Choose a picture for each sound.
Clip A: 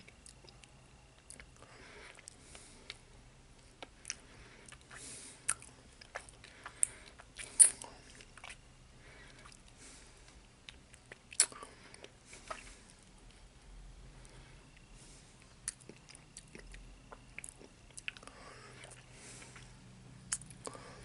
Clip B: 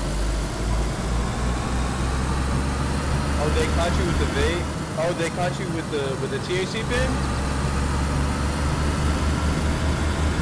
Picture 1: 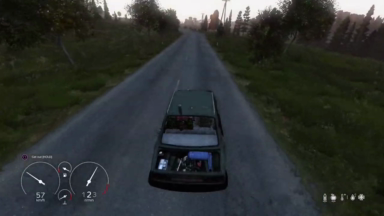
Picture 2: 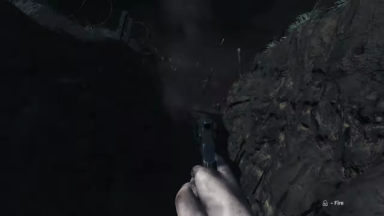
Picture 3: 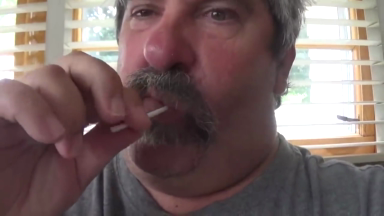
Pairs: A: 3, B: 1